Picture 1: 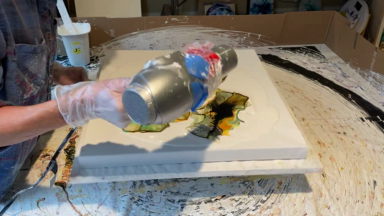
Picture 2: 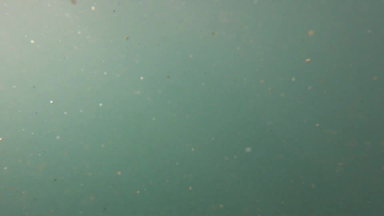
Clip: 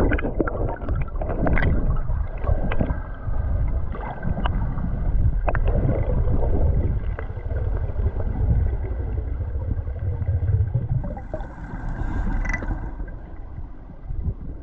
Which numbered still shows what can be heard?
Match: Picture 2